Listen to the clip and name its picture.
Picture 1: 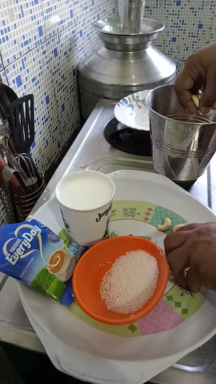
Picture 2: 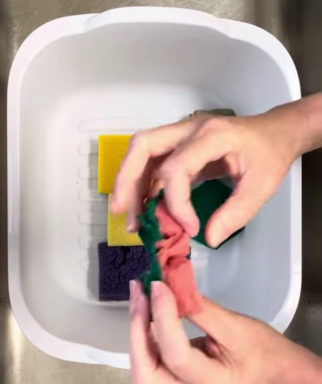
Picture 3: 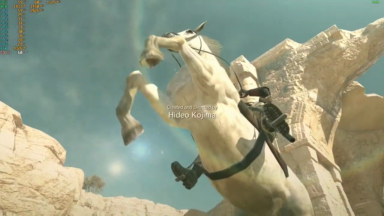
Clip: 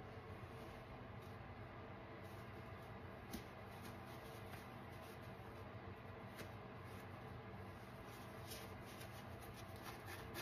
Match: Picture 2